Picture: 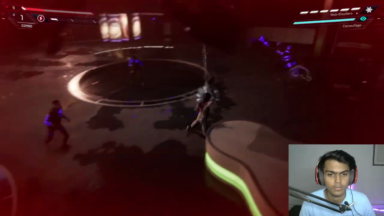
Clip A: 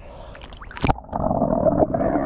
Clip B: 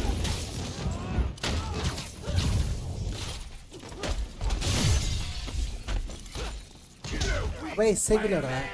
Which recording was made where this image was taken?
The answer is B